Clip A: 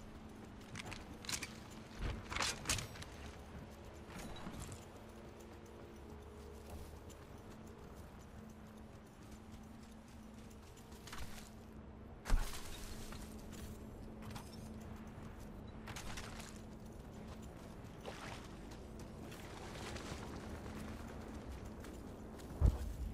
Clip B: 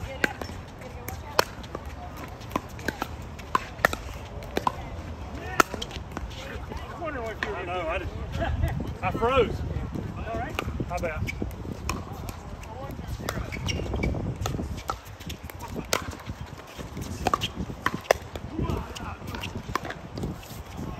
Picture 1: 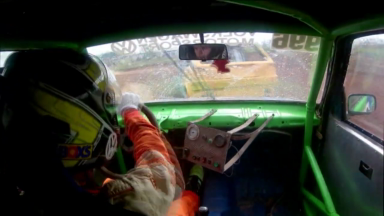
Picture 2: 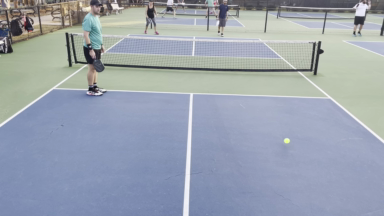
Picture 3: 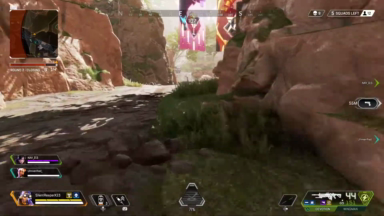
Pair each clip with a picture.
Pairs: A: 3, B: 2